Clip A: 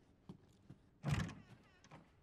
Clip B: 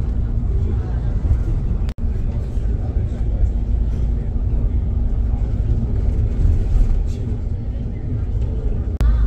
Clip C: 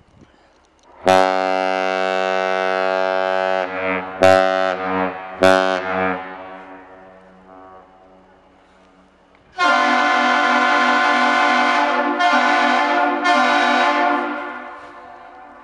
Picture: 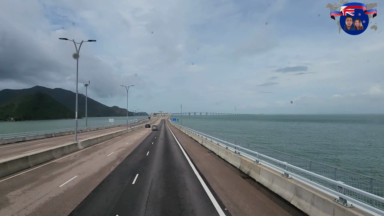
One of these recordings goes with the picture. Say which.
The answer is B